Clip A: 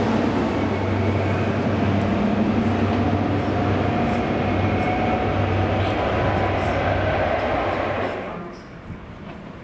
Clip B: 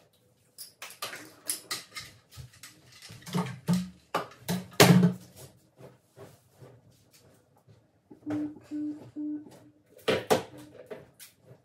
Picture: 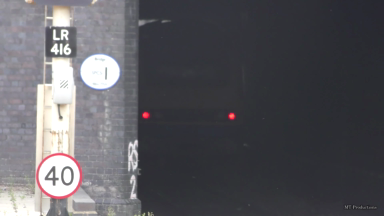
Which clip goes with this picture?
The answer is A